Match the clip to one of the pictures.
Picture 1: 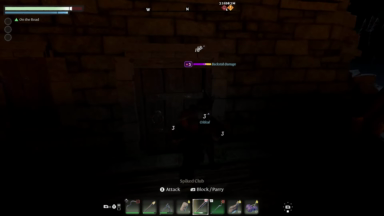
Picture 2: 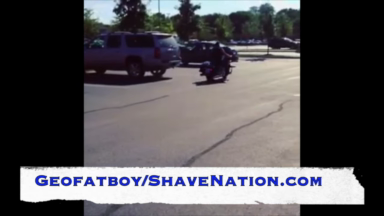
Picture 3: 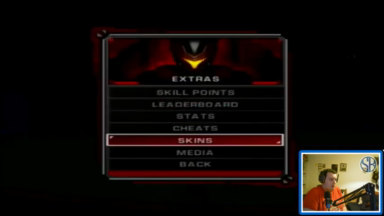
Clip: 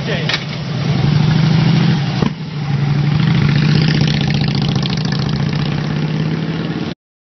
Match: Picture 2